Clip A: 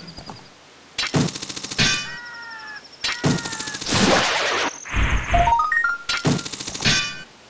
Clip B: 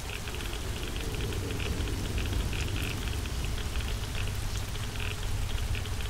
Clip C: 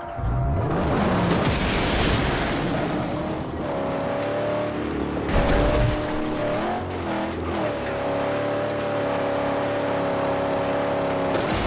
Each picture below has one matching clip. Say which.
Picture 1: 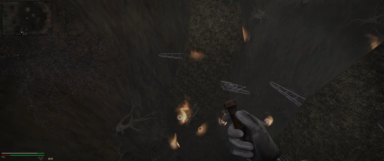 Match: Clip B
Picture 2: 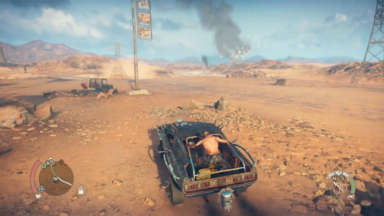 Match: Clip C